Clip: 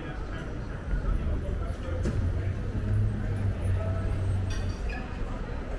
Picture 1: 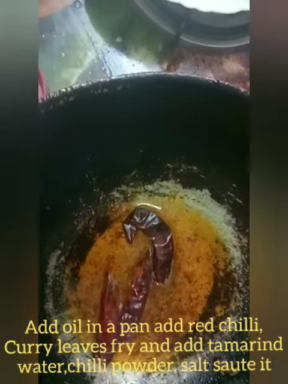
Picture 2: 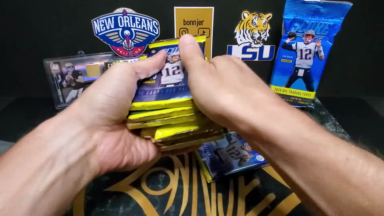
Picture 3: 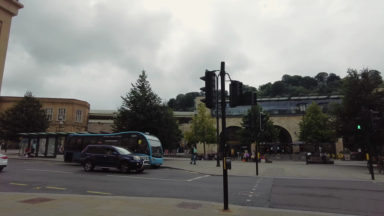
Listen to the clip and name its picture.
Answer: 3